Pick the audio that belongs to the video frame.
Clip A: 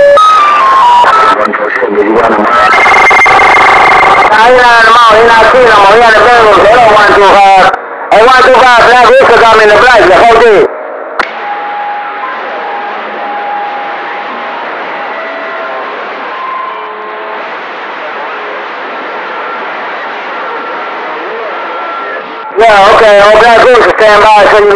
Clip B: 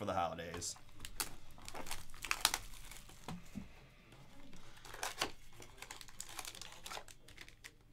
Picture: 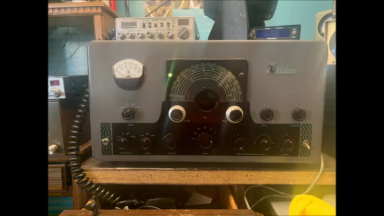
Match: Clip A